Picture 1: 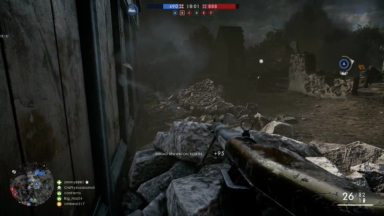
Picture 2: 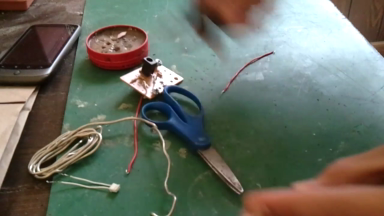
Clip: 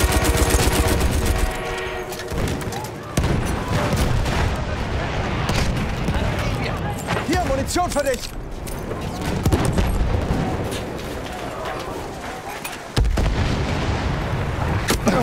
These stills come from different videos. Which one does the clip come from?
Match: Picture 1